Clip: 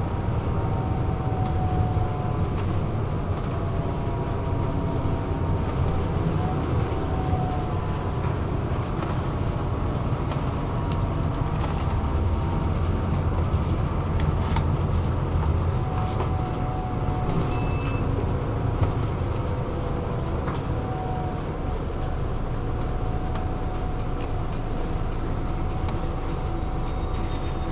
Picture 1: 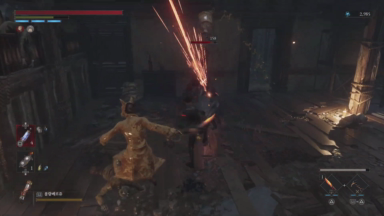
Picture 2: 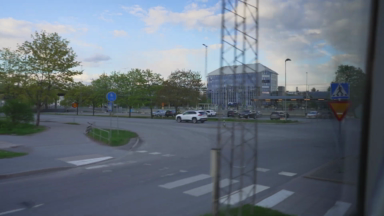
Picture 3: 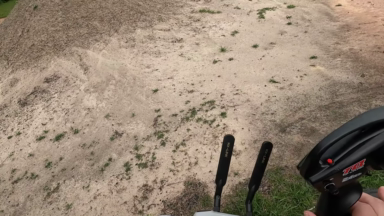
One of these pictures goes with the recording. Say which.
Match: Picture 2